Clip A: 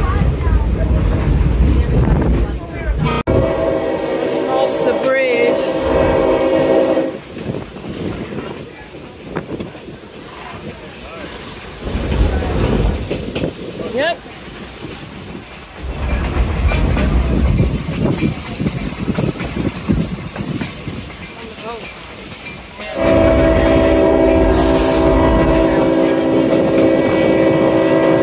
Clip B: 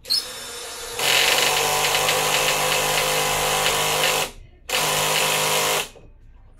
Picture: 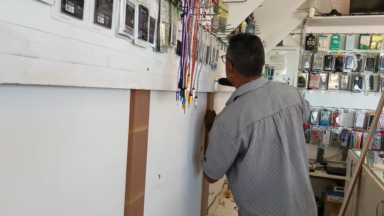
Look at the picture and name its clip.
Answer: B